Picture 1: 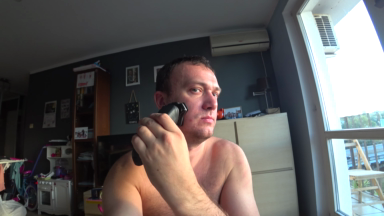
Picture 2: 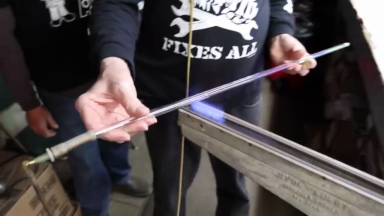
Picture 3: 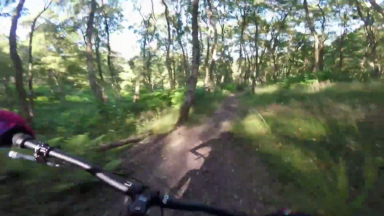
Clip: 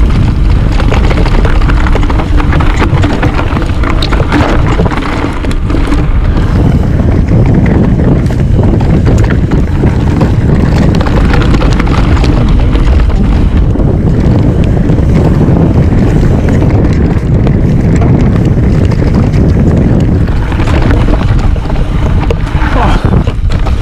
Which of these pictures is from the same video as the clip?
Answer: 3